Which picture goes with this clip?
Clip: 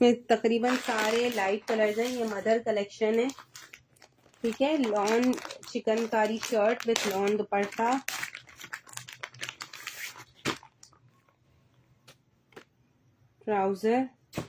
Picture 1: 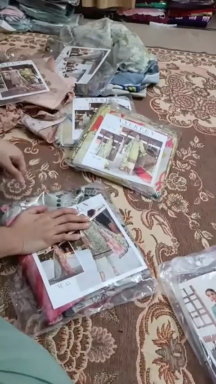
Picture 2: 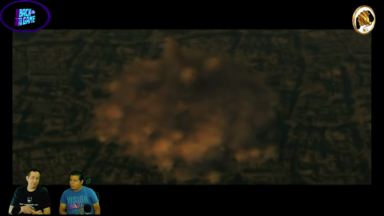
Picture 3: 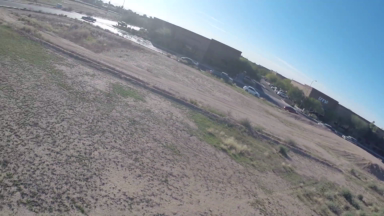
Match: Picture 1